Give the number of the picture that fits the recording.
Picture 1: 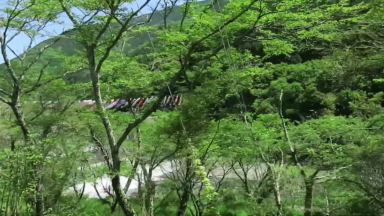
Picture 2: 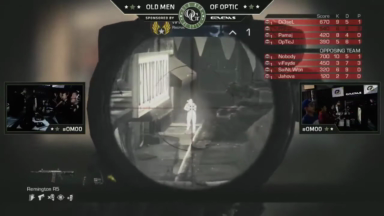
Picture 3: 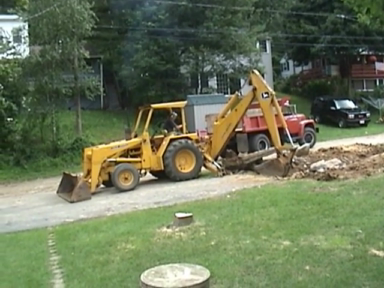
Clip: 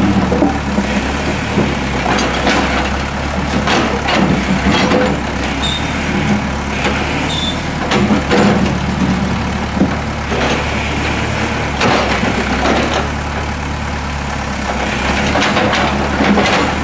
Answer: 3